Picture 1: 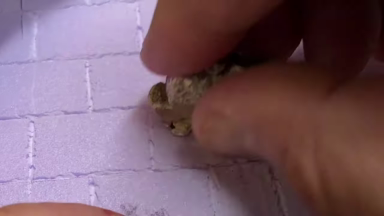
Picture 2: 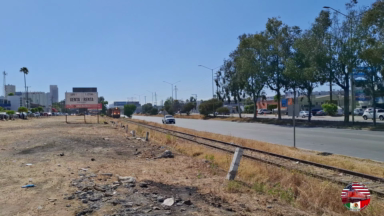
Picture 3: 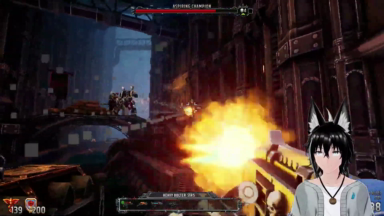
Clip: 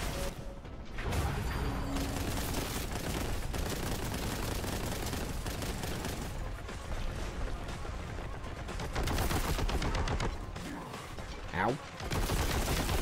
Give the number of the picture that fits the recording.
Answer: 3